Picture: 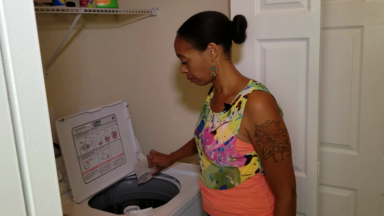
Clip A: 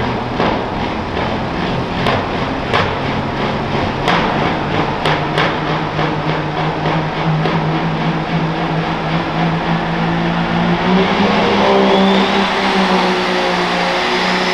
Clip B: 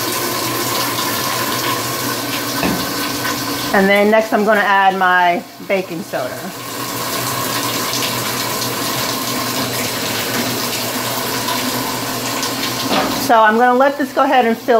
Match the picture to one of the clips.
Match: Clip B